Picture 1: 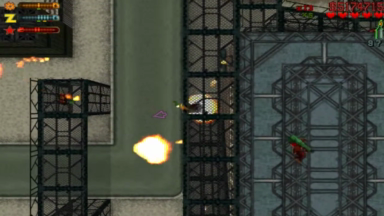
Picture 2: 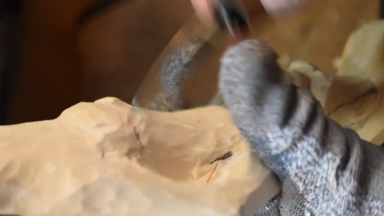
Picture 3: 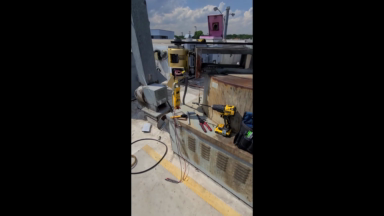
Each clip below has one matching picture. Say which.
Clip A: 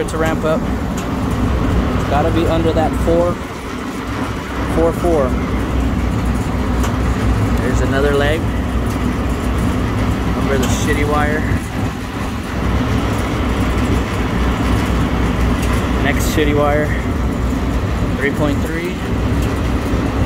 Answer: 3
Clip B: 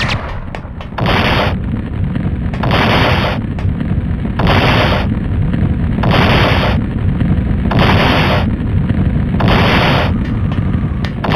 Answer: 1